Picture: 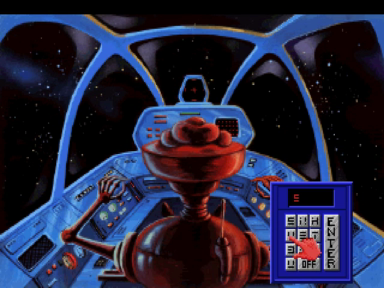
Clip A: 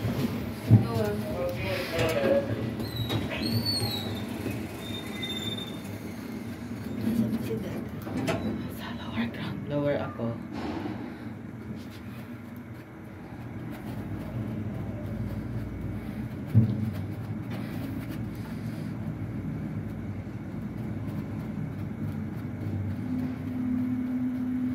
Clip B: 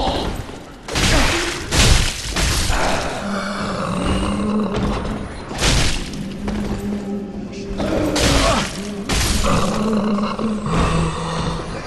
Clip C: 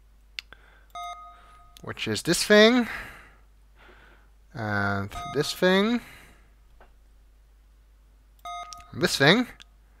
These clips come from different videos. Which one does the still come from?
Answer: C